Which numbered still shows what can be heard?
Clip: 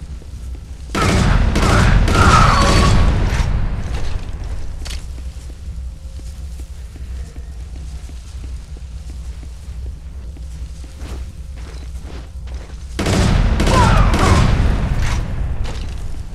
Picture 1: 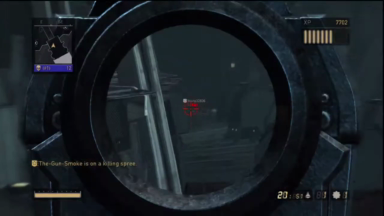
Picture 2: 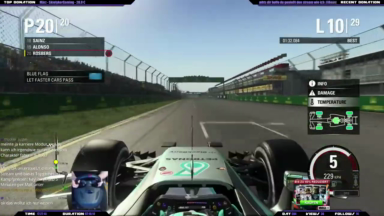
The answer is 1